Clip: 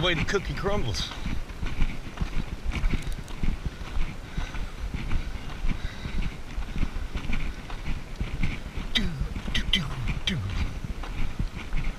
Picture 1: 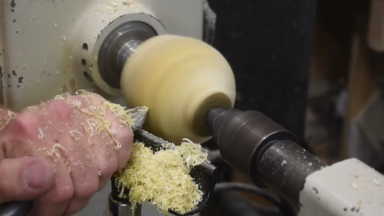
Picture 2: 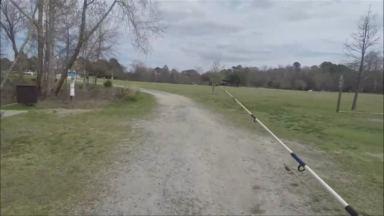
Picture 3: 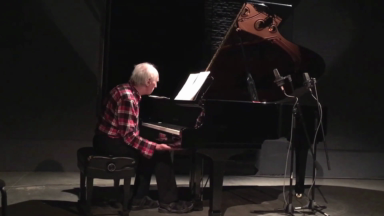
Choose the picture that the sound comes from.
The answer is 2